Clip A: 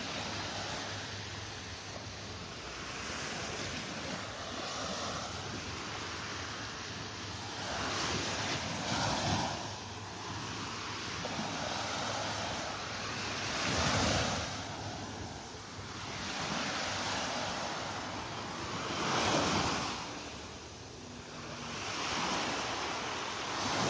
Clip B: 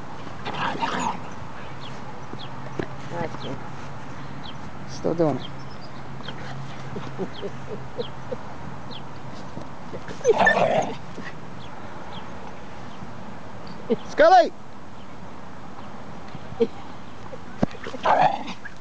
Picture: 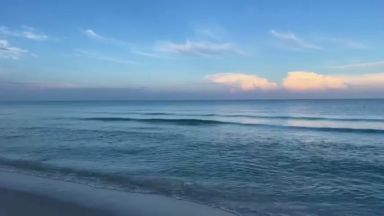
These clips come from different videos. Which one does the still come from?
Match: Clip A